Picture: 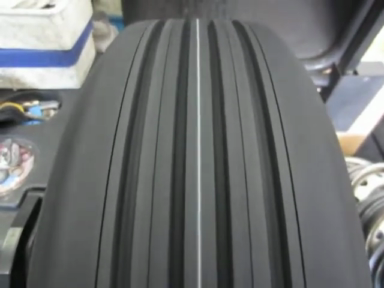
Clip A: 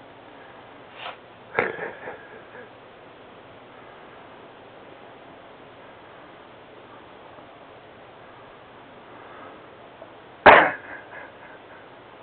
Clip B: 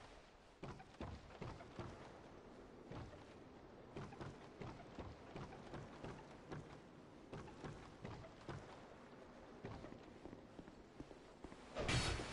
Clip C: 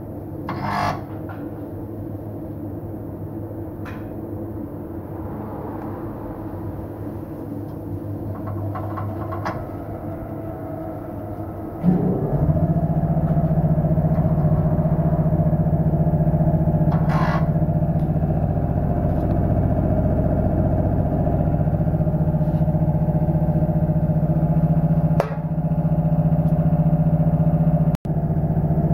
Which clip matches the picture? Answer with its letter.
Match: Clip C